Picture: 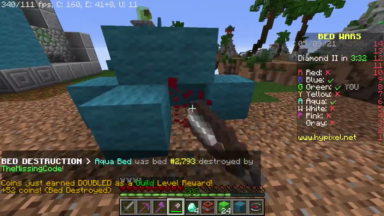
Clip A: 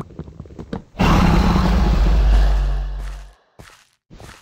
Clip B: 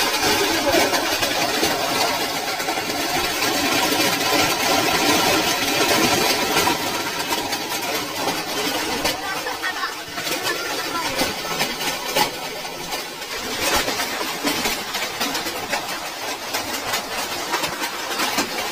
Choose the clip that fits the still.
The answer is A